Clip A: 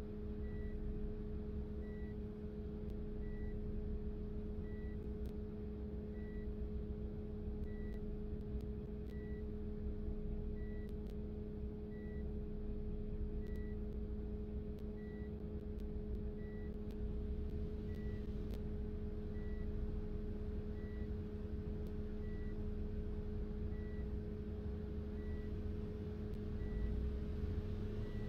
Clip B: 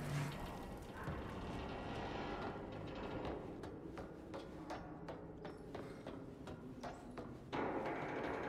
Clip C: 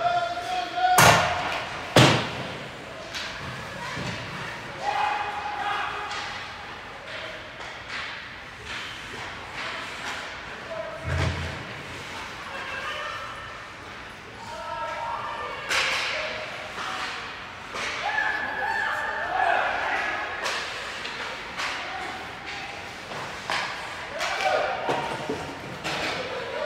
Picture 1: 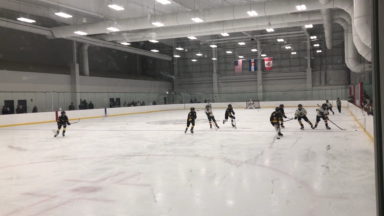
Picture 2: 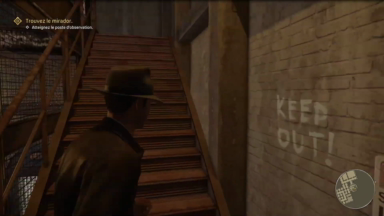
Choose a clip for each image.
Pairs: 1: C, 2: B